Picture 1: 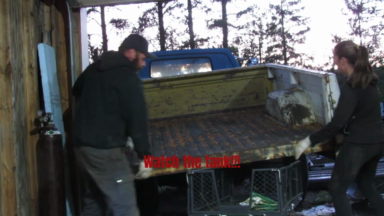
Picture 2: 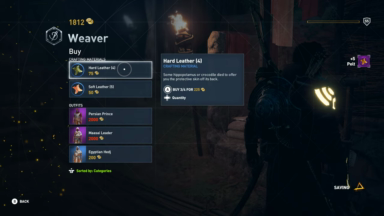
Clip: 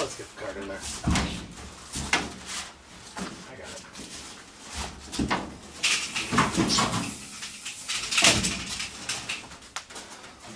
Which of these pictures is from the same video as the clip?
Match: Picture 1